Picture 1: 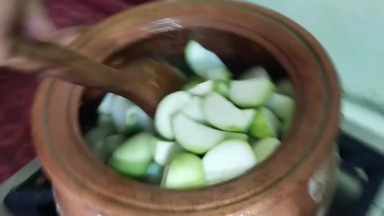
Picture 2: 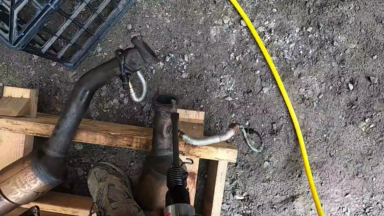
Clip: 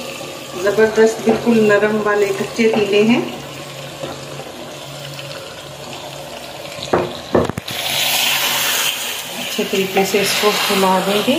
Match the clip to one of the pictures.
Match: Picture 1